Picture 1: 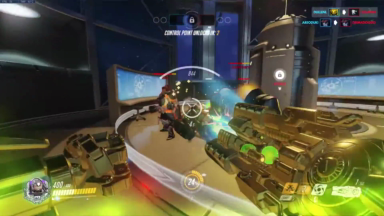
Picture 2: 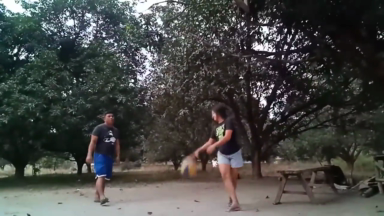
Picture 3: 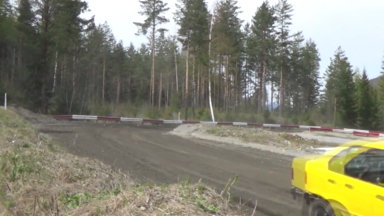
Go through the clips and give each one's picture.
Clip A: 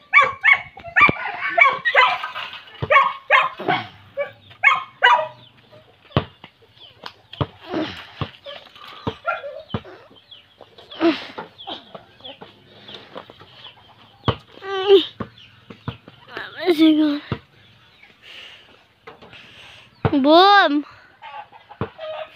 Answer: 2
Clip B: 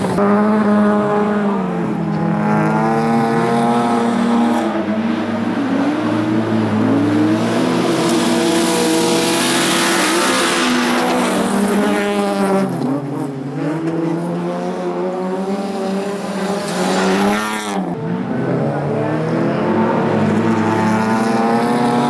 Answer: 3